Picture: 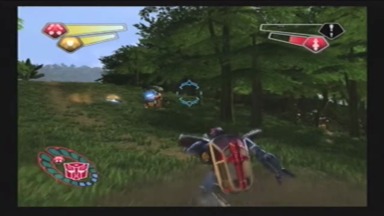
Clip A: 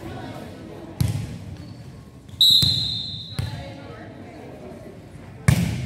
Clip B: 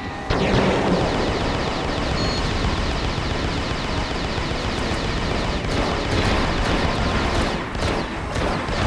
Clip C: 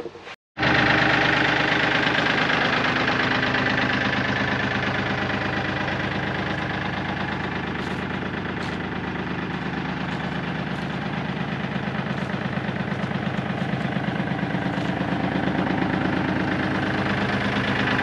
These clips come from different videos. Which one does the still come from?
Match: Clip B